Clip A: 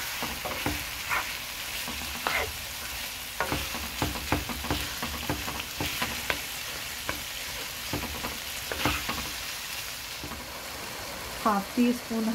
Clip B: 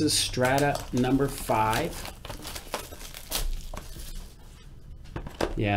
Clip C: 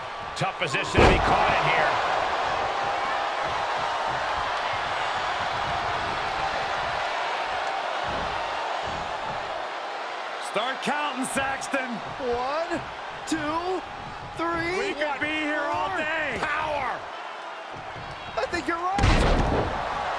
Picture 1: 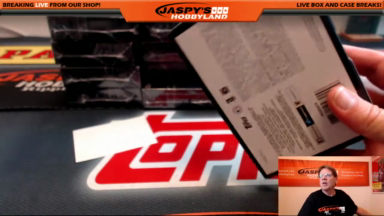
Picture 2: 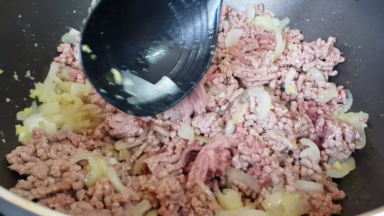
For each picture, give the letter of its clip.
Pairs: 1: B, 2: A